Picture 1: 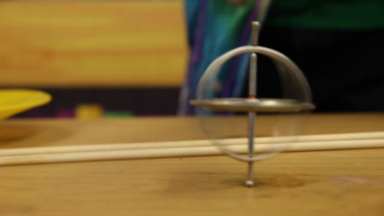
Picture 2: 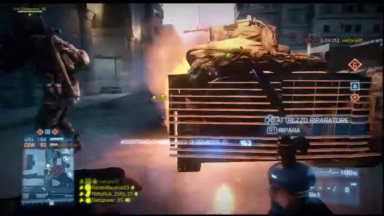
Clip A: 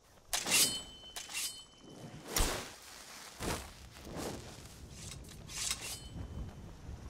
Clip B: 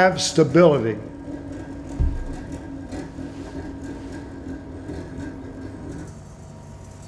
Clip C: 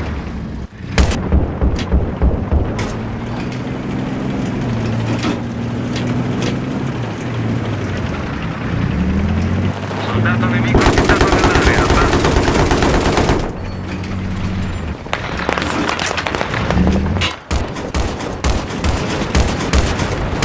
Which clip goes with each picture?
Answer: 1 B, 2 C